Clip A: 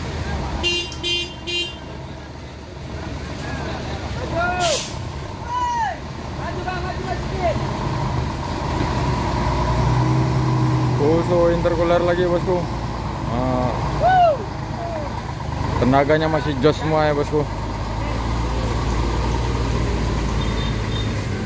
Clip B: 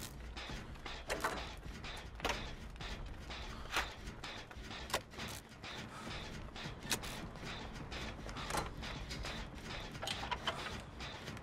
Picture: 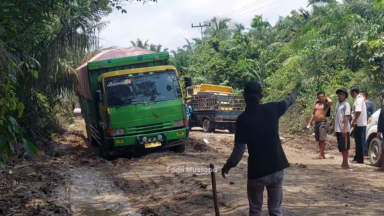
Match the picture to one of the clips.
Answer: A